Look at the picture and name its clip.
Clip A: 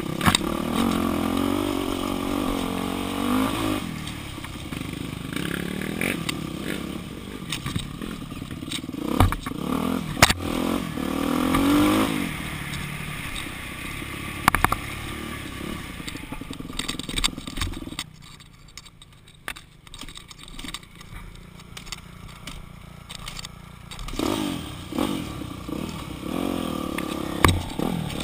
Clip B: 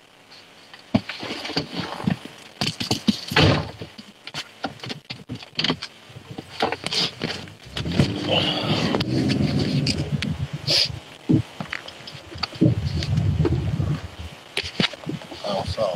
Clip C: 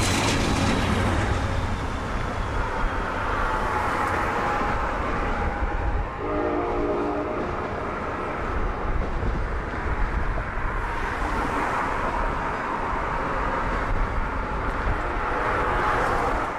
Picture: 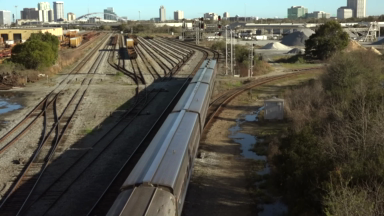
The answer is C